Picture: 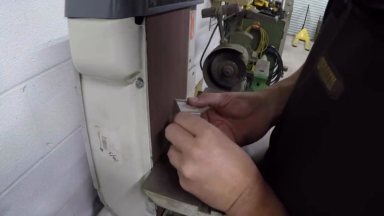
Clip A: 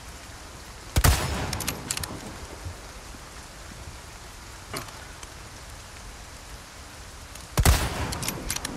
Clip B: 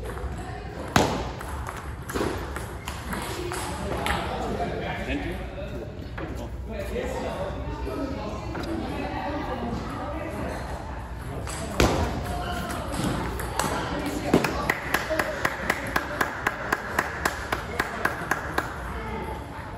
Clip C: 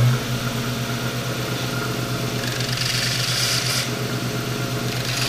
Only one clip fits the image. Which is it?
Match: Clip C